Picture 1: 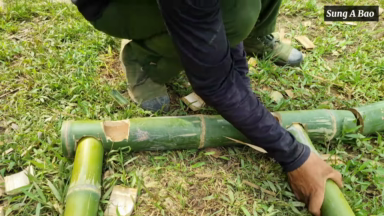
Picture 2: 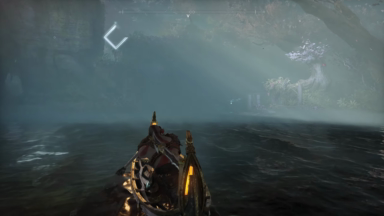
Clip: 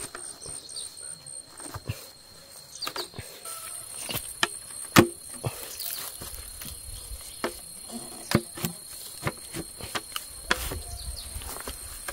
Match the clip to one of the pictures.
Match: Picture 1